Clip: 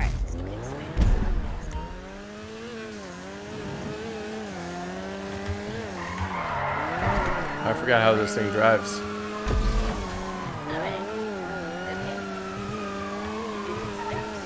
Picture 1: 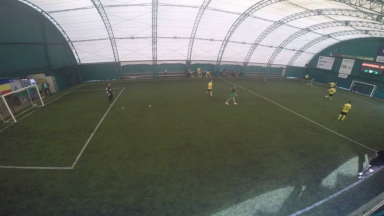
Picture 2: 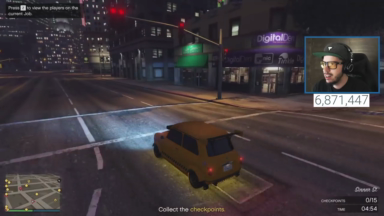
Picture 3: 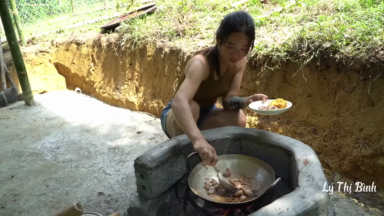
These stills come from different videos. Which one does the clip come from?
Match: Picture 2